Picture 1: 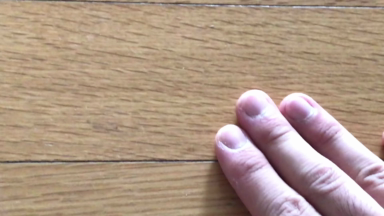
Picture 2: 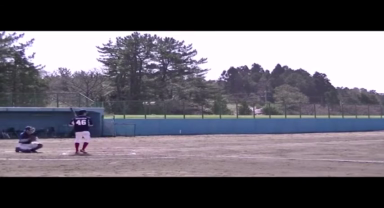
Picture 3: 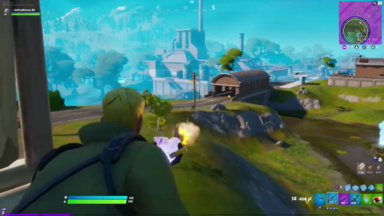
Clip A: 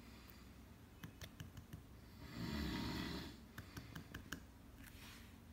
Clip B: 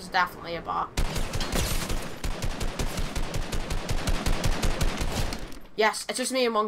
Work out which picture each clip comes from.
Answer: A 1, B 3